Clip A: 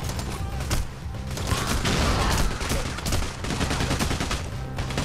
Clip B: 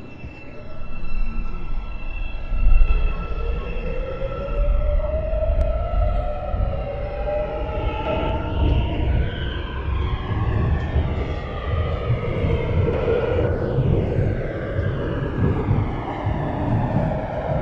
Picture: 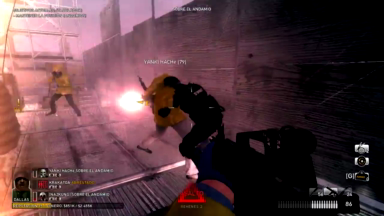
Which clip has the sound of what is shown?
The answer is A